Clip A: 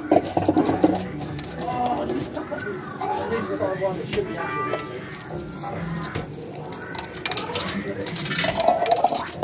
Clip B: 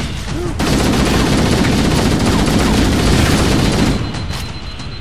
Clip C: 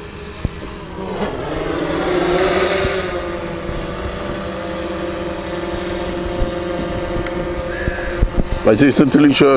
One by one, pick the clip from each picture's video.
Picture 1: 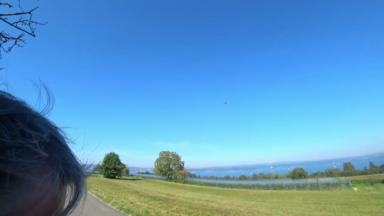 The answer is C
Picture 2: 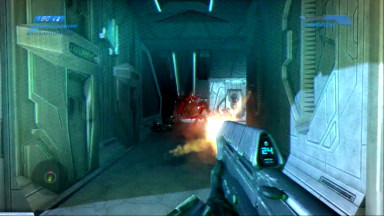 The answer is B